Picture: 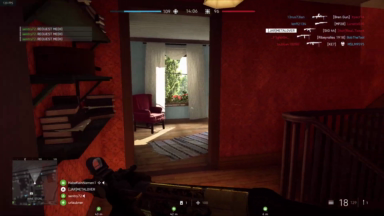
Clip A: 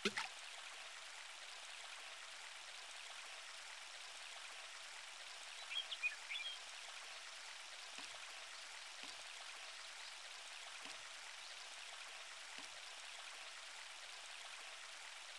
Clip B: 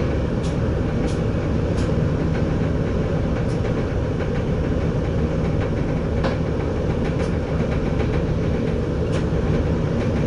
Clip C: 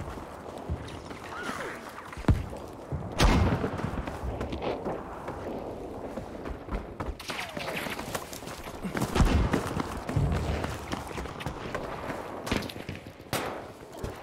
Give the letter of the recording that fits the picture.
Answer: C